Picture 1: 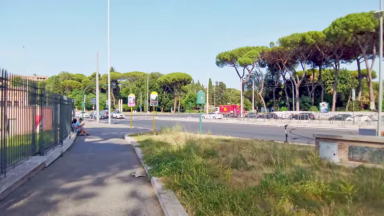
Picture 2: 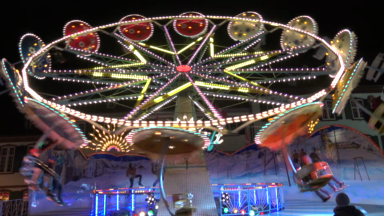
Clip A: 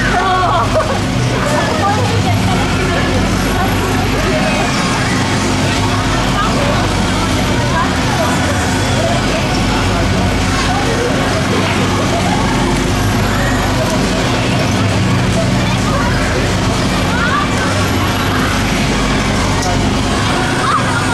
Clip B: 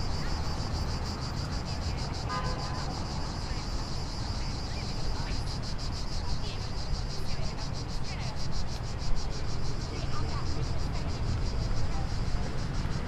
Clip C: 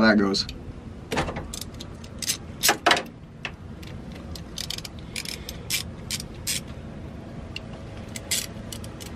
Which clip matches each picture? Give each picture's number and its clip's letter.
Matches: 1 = B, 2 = A